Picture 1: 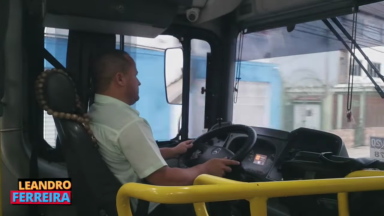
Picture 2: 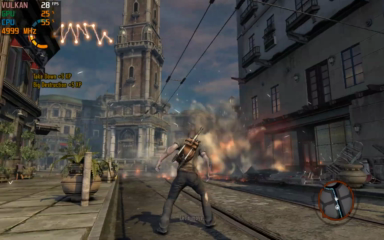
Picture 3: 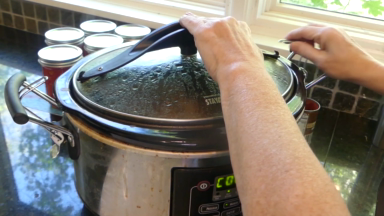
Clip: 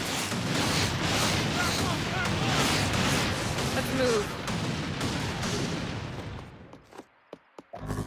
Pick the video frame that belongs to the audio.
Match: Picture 2